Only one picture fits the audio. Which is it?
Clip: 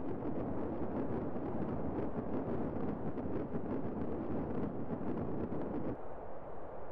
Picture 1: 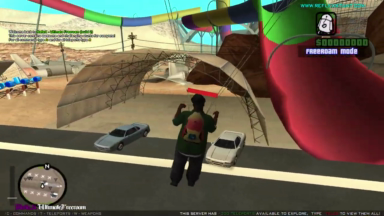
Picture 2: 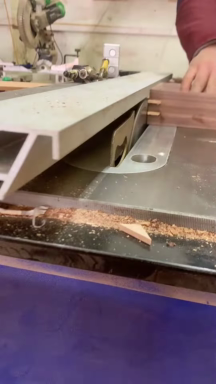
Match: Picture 1